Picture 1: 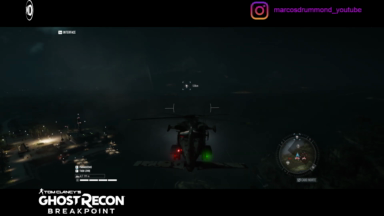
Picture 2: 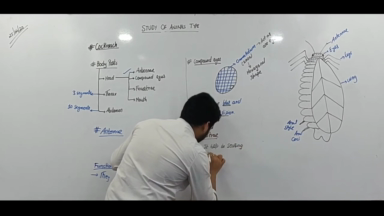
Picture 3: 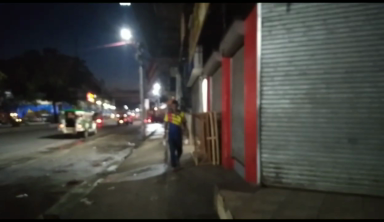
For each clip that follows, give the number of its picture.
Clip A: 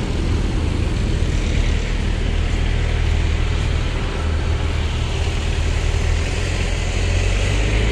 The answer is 3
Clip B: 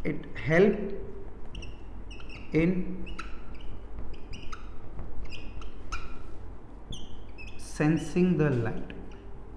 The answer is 2